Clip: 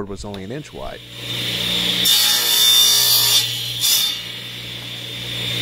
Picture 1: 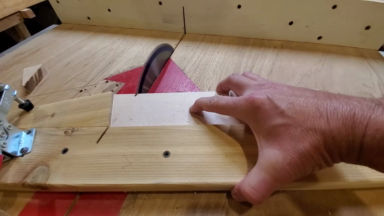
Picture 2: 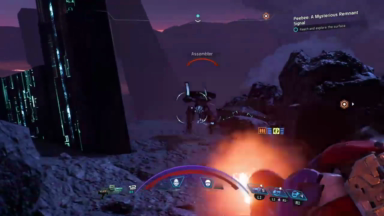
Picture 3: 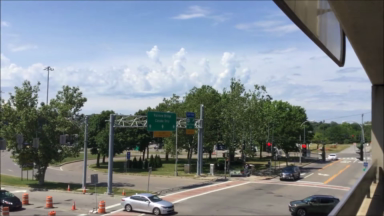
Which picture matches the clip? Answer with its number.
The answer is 1